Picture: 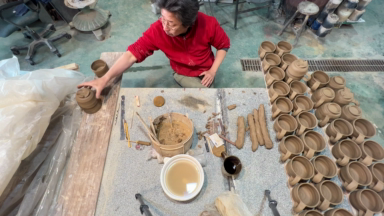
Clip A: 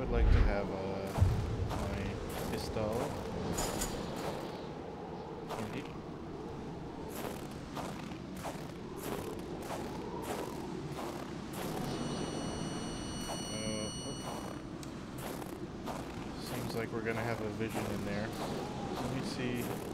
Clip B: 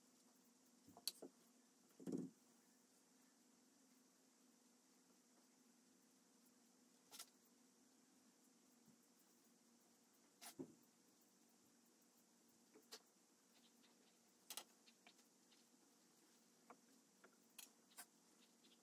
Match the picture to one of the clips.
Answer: B